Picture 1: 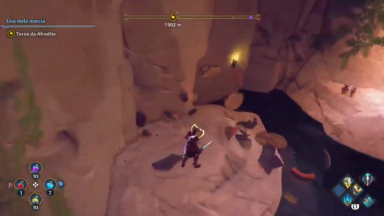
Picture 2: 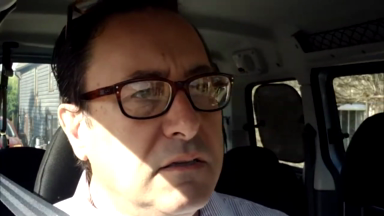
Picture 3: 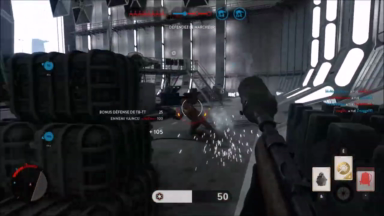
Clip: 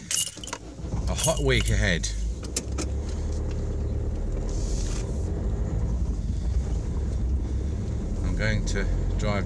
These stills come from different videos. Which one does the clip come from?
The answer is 2